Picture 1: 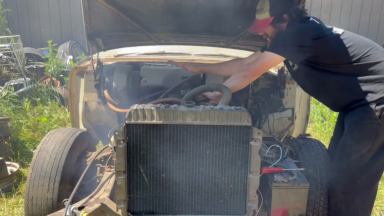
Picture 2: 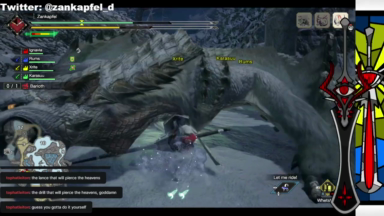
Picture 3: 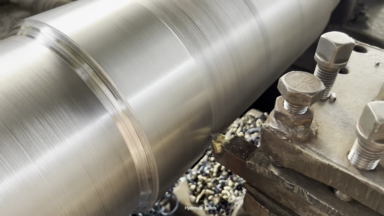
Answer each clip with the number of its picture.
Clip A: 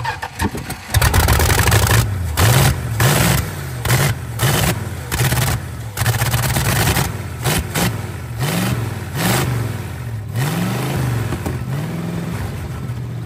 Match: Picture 1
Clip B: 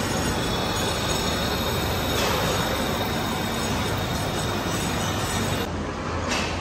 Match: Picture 3